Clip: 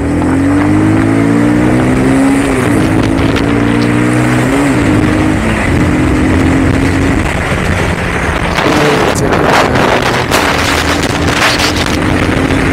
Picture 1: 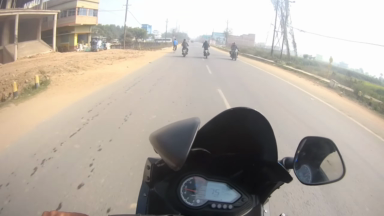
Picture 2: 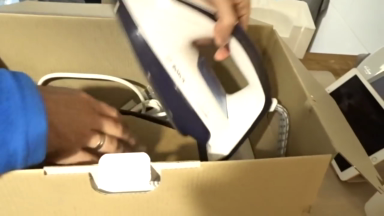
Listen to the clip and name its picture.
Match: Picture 1